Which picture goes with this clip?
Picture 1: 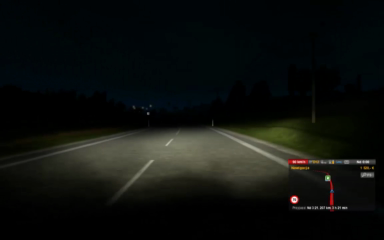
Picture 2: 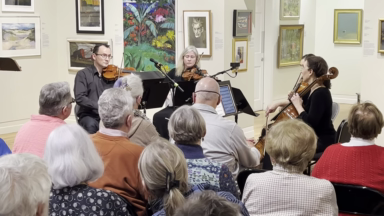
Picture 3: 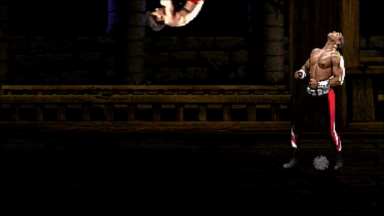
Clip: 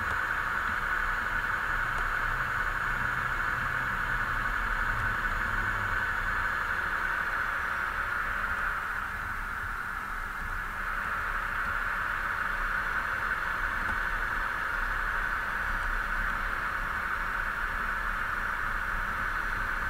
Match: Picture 1